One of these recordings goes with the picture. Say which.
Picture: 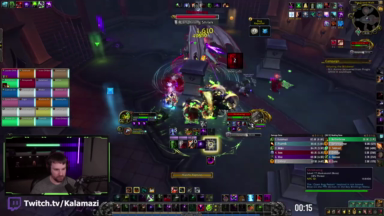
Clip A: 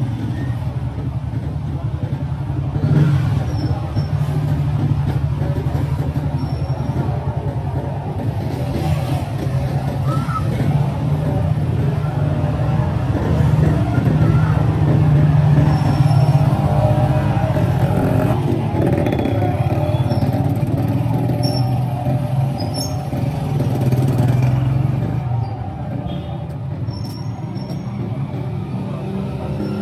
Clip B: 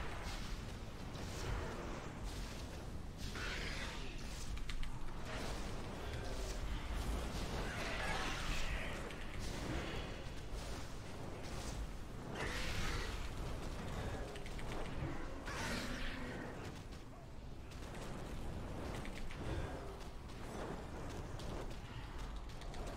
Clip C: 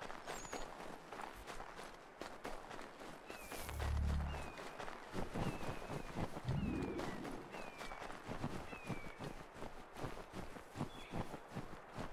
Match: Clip B